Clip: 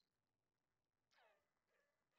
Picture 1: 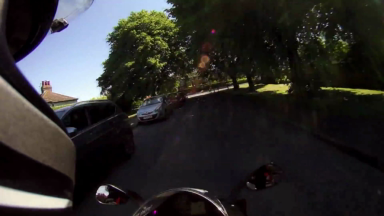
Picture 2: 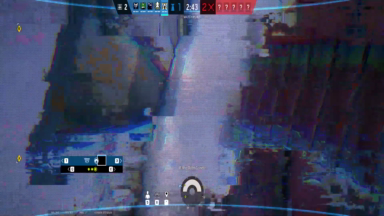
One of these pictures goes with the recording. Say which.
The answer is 2